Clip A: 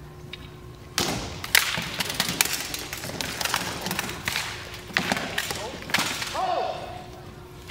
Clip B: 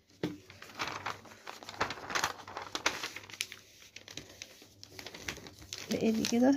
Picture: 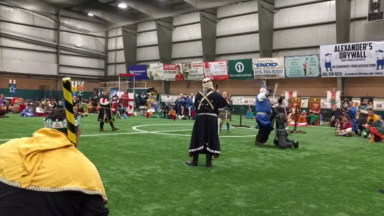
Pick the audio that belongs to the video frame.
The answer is A